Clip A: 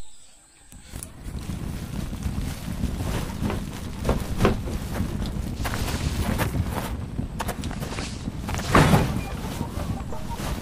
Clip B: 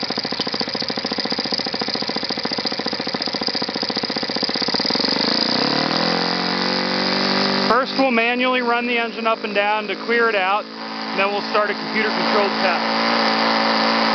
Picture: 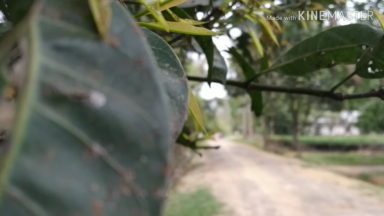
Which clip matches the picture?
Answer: A